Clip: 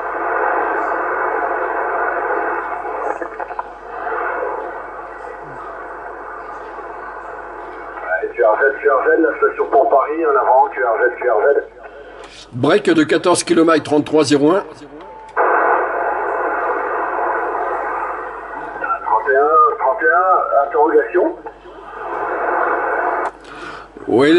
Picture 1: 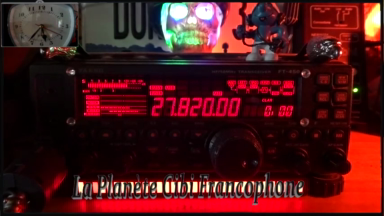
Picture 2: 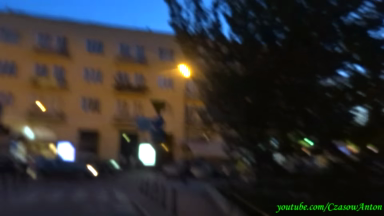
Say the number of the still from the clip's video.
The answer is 1